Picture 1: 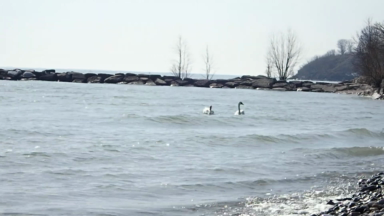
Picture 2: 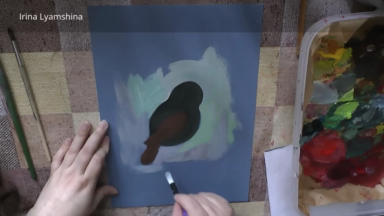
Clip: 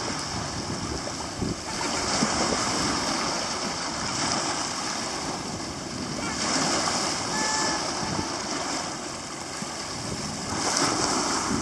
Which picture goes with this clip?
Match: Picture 1